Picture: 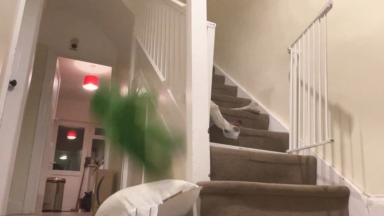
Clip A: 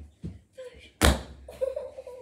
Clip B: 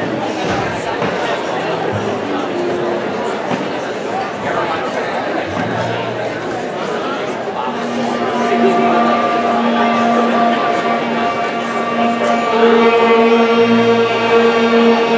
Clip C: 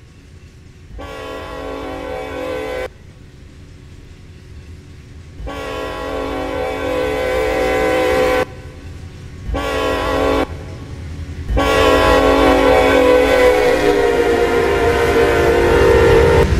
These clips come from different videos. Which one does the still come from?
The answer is A